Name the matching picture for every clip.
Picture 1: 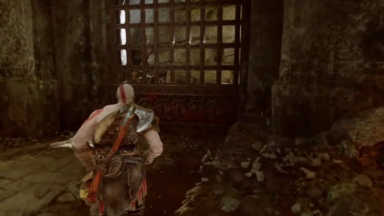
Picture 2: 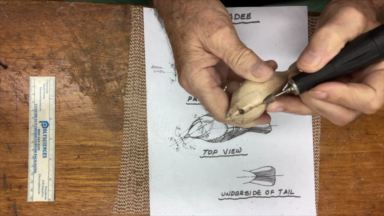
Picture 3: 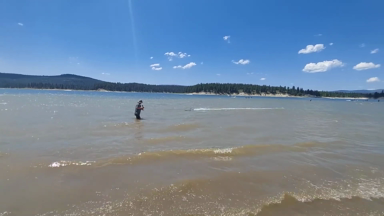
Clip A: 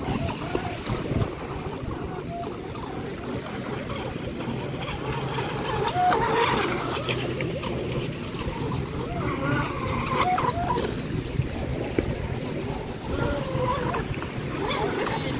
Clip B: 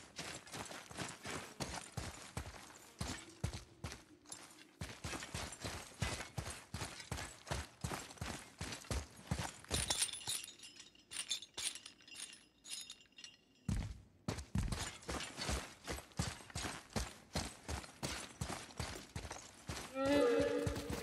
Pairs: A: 3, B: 1